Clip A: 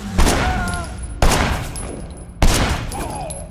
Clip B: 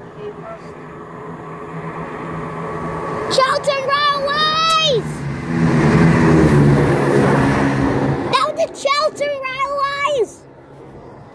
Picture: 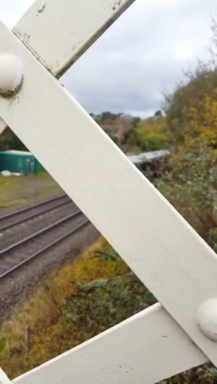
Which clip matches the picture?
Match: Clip B